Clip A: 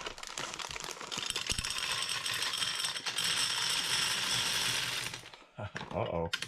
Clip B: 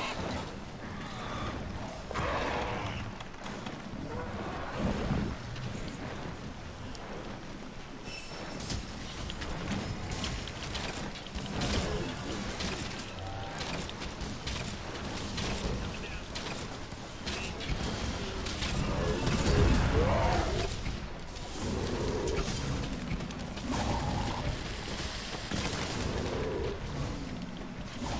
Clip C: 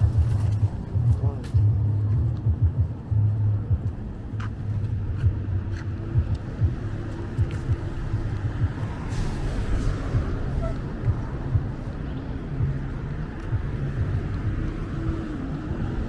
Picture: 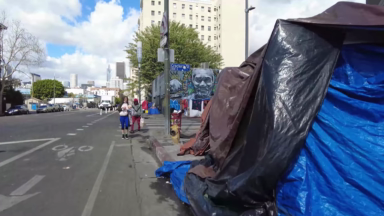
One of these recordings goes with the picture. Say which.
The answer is C